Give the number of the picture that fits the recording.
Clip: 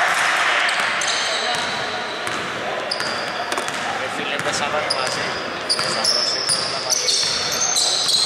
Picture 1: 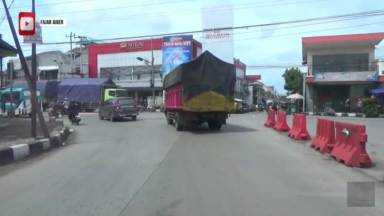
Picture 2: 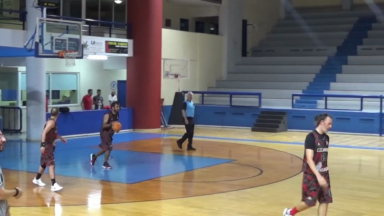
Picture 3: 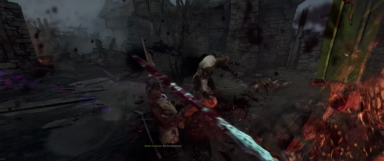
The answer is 2